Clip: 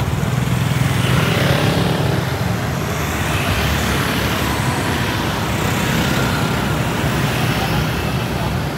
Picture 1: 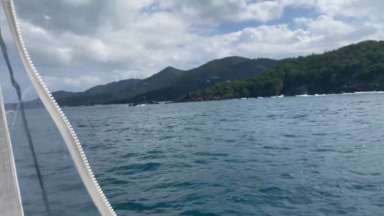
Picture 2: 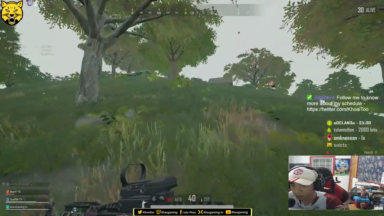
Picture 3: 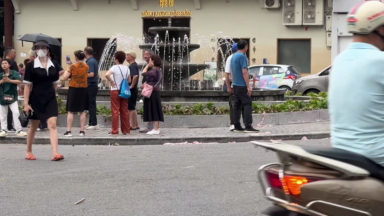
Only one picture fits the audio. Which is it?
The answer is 3